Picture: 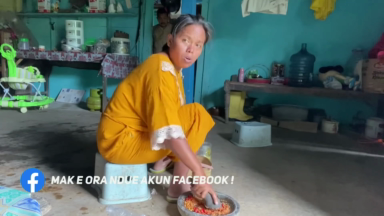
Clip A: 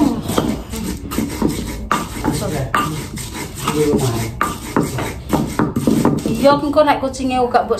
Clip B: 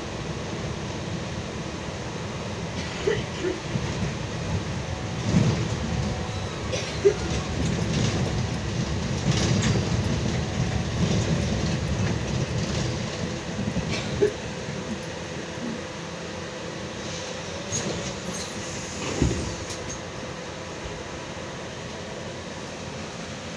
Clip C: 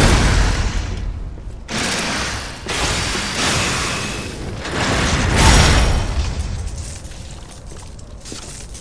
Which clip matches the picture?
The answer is A